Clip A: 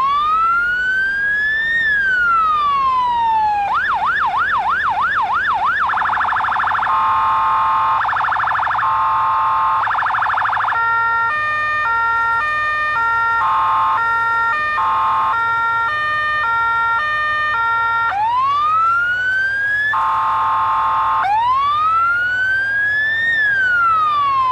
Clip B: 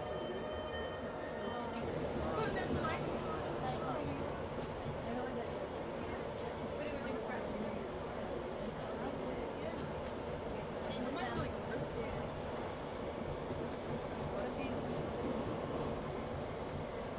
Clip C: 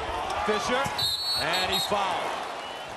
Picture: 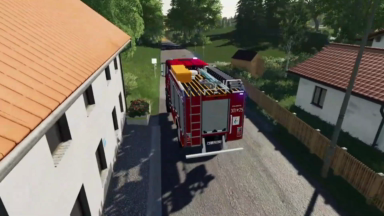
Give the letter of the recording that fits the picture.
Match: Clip A